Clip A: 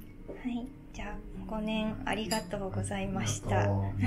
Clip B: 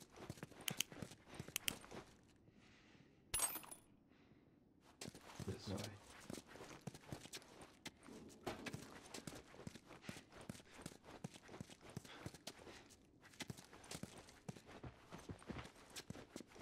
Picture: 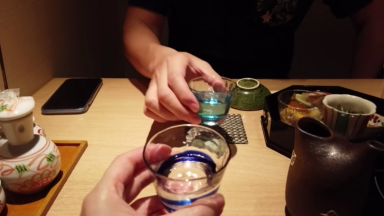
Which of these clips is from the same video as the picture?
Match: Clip A